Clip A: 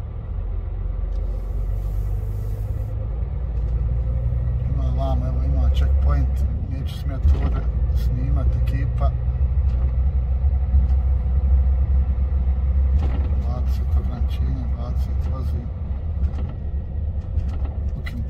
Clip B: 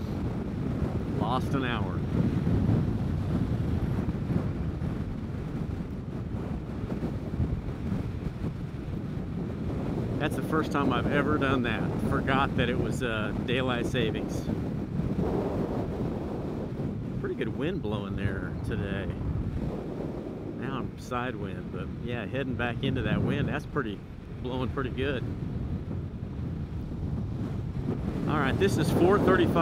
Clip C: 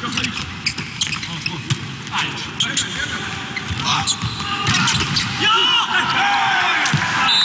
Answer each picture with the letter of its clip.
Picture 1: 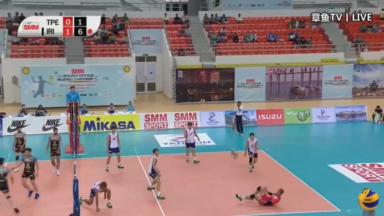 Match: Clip C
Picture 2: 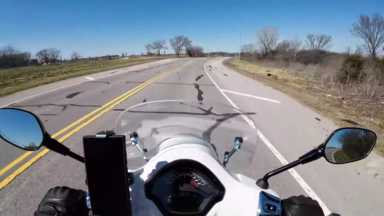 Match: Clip B